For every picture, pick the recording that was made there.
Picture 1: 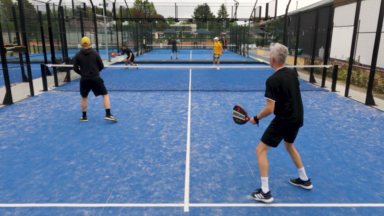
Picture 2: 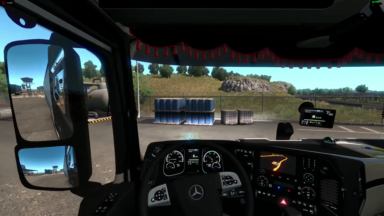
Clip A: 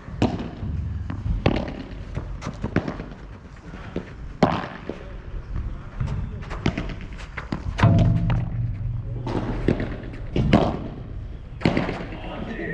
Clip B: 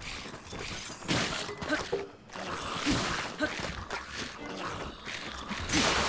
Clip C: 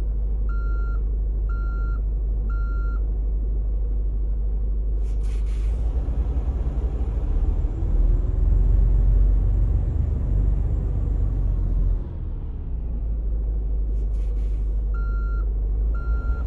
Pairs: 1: A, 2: C